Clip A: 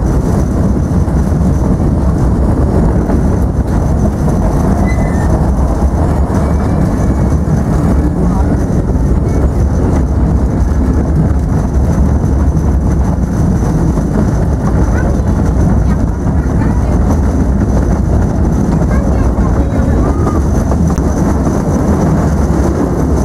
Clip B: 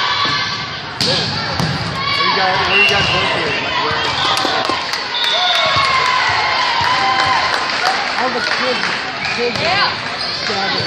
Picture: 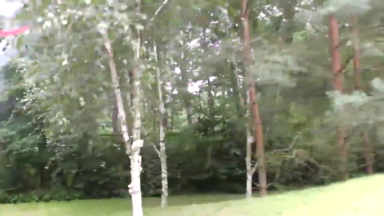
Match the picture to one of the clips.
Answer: A